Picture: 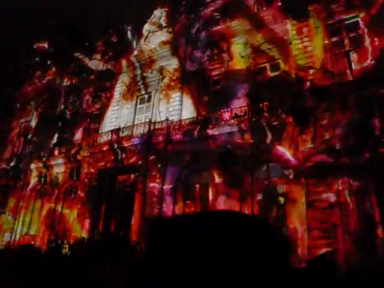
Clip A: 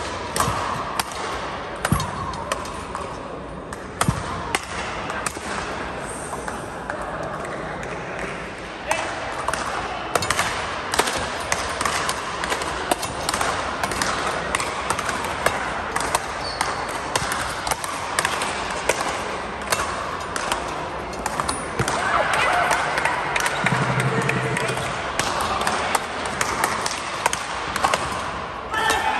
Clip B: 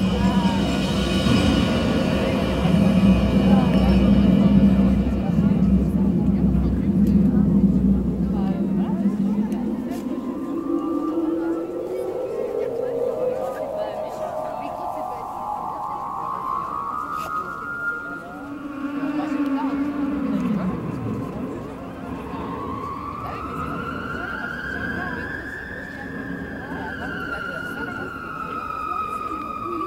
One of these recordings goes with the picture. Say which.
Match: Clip B